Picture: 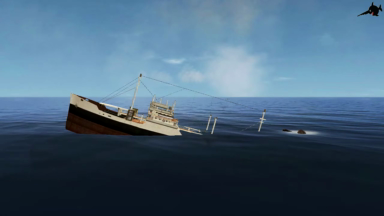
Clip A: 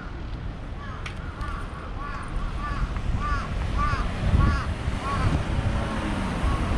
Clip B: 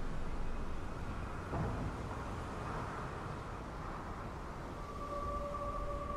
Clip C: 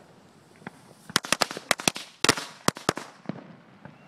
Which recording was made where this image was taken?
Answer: B